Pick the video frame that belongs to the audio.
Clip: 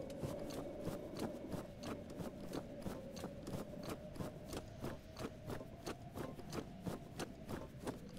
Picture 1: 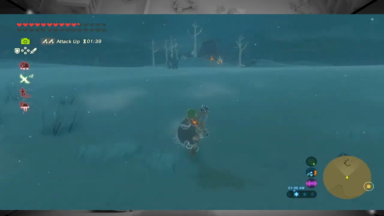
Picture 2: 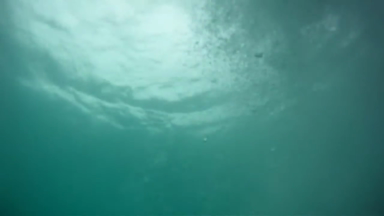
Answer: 1